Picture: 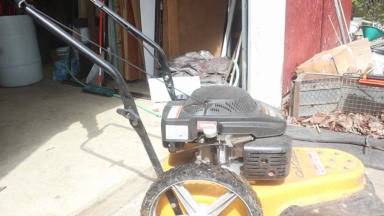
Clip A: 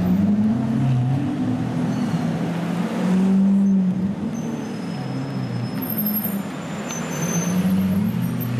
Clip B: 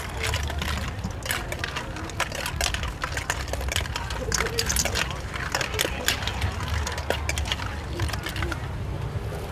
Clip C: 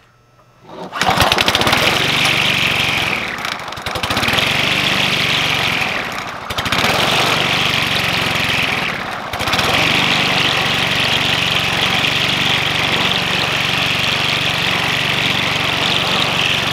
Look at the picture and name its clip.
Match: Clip C